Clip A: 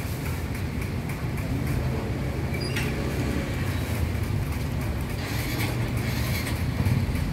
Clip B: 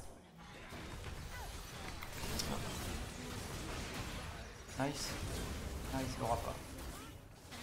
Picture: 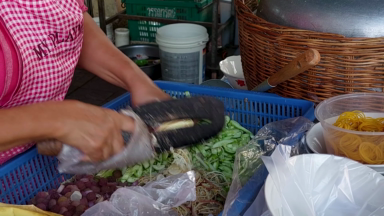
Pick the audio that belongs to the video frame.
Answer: A